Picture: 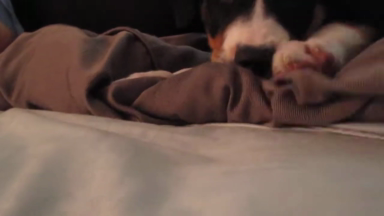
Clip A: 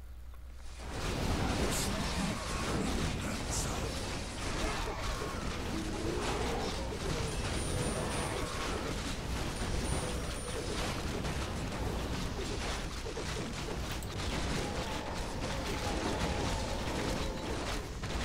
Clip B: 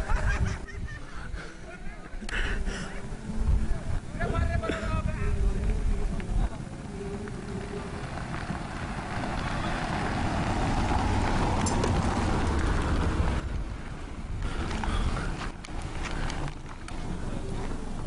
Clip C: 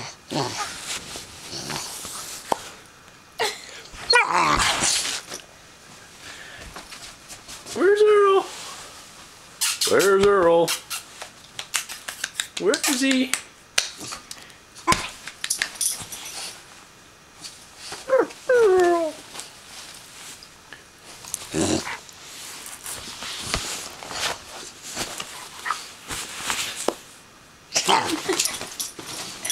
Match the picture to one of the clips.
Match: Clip C